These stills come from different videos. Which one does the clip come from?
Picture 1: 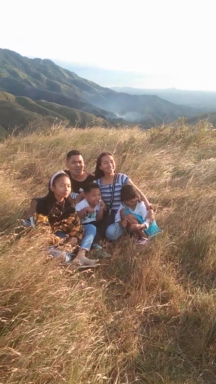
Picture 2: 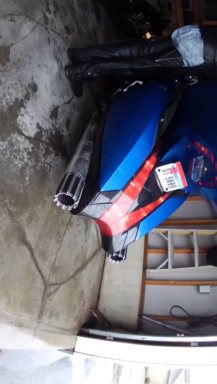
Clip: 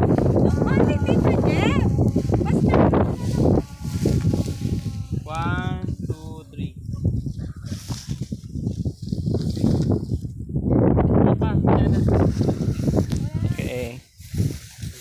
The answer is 1